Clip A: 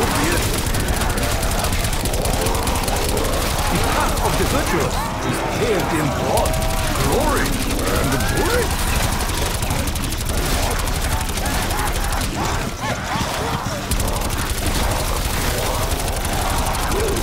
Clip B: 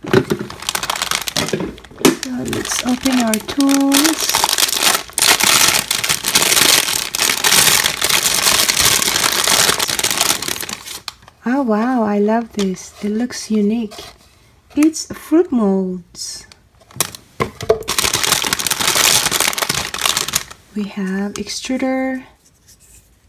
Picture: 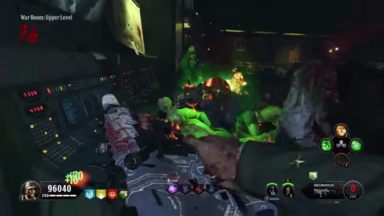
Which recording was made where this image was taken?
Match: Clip A